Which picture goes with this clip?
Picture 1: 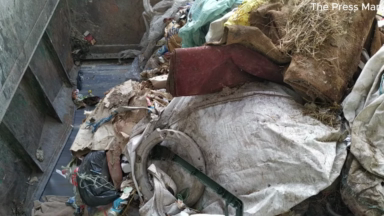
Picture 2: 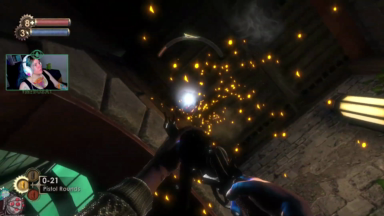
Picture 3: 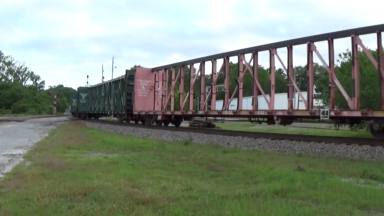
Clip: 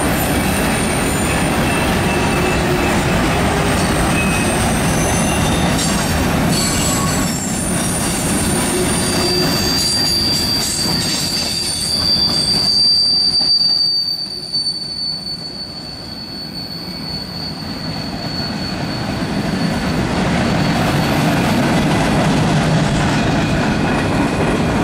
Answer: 3